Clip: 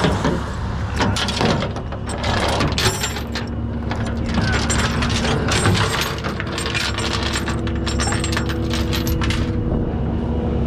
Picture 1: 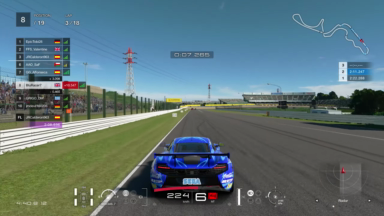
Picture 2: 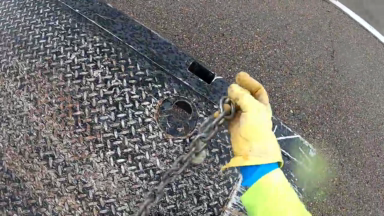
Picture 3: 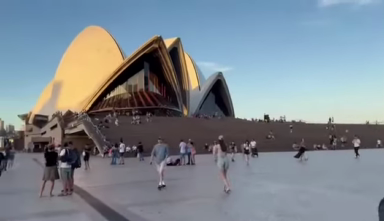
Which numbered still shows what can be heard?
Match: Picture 2